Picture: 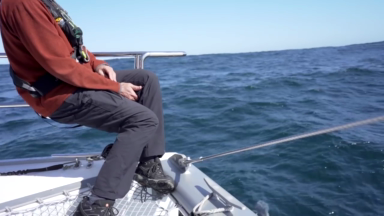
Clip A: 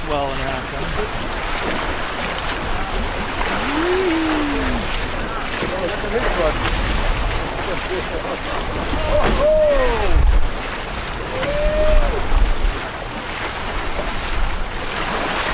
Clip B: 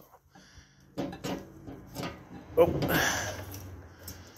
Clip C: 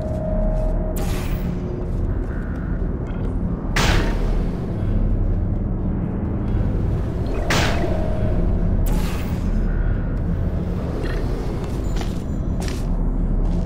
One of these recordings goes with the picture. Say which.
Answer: A